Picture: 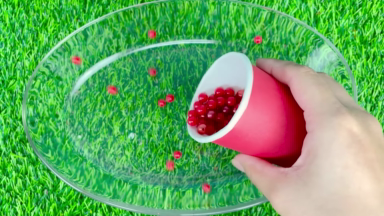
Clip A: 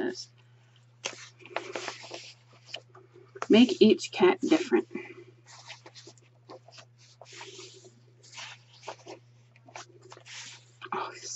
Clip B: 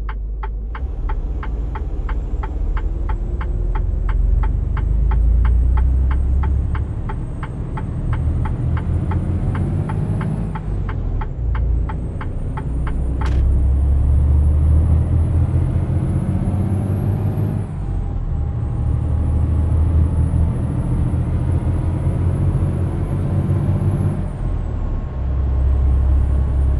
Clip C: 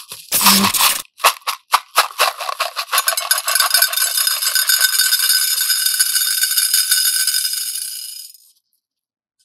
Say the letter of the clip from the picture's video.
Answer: C